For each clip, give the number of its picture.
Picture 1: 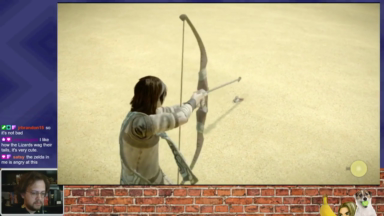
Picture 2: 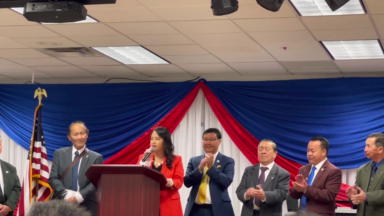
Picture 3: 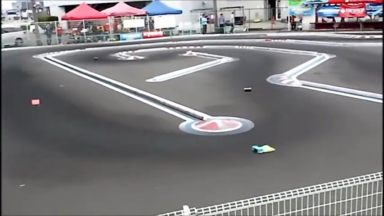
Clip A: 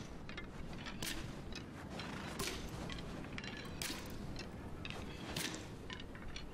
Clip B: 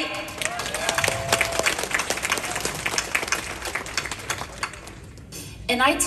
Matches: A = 1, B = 2